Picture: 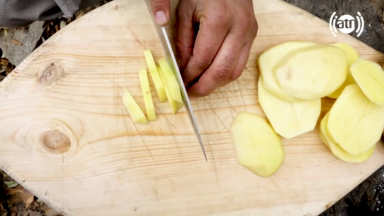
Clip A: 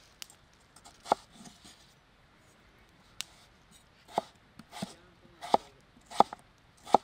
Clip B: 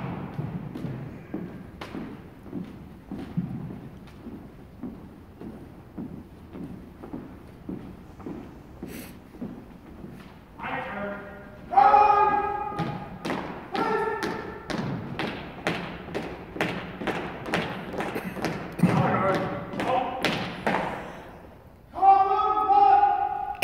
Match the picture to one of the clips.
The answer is A